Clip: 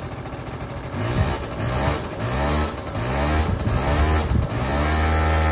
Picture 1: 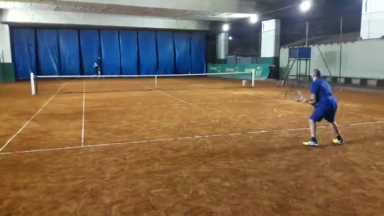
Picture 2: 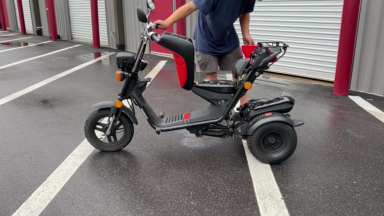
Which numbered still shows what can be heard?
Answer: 2